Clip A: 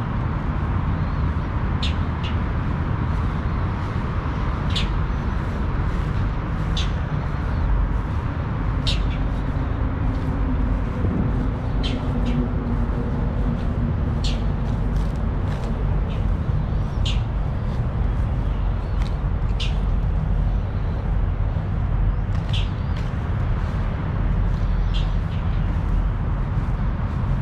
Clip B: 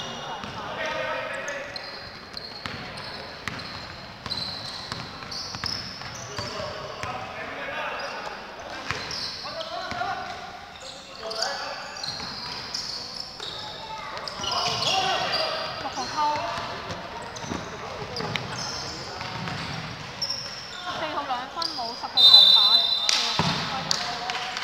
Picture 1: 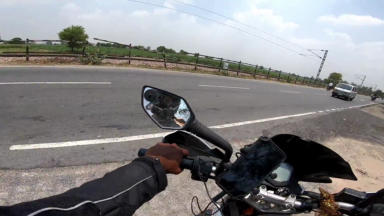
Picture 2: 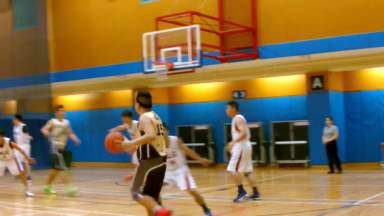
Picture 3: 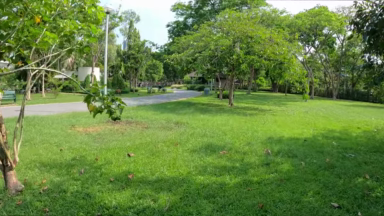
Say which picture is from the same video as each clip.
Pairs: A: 3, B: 2